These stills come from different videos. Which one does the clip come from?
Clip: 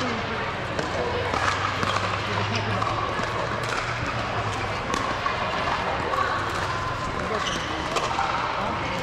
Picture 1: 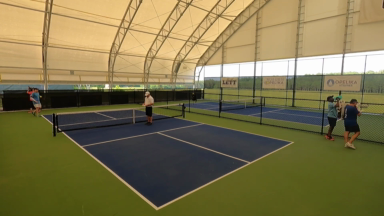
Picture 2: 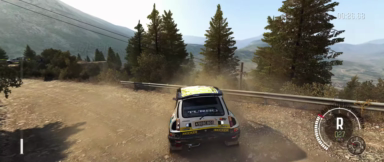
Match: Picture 1